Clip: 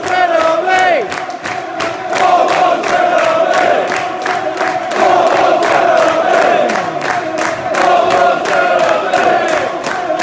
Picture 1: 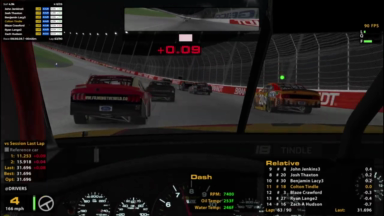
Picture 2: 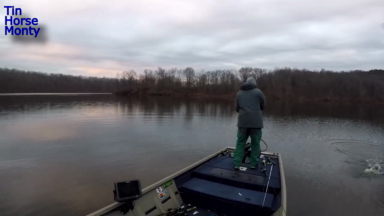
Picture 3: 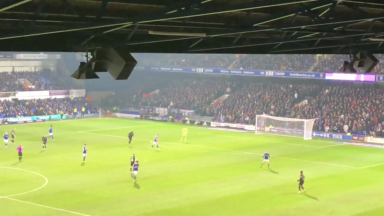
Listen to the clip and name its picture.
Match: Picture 3